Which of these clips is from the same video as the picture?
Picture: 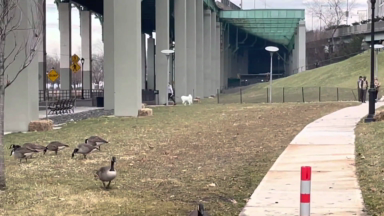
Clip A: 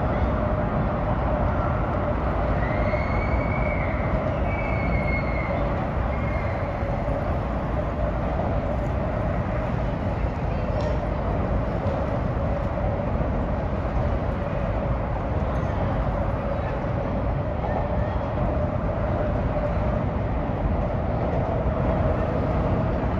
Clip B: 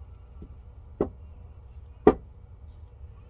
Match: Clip A